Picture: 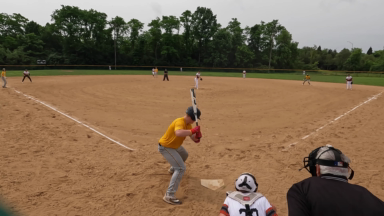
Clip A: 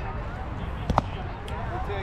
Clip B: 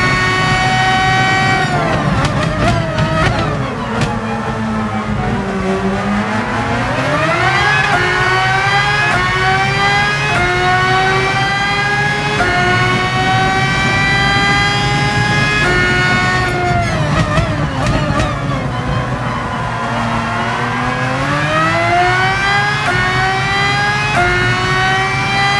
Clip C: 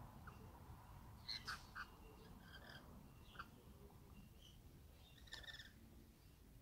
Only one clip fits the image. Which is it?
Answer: A